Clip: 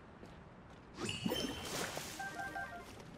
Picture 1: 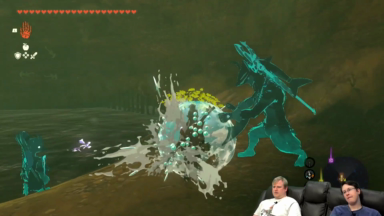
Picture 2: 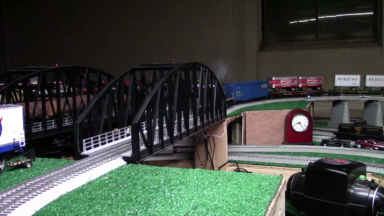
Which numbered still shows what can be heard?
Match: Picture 1